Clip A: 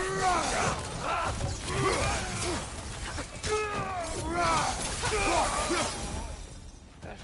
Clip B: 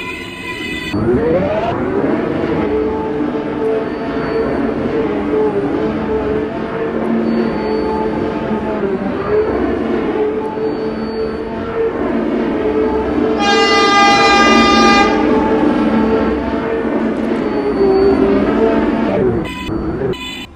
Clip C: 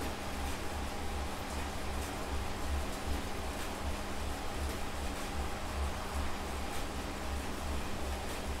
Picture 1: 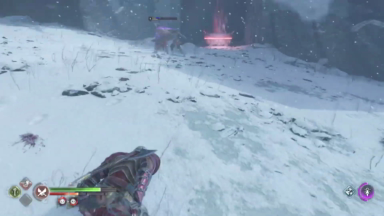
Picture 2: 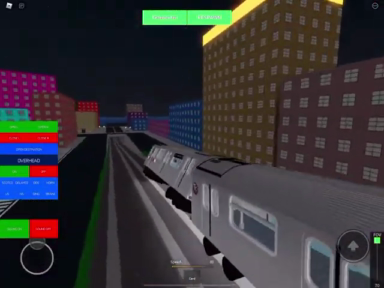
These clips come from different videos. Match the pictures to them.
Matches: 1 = A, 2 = B